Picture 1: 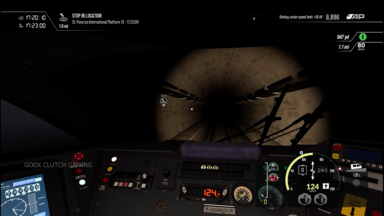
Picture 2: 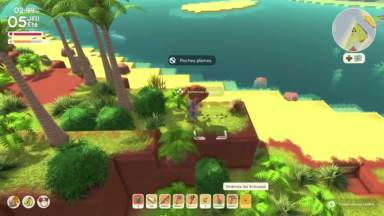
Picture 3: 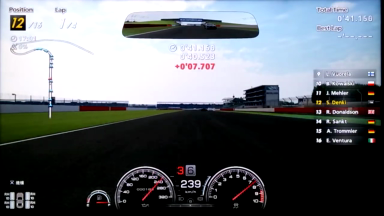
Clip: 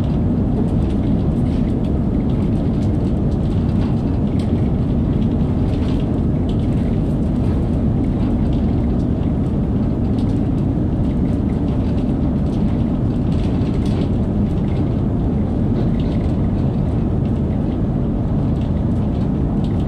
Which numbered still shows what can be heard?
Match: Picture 1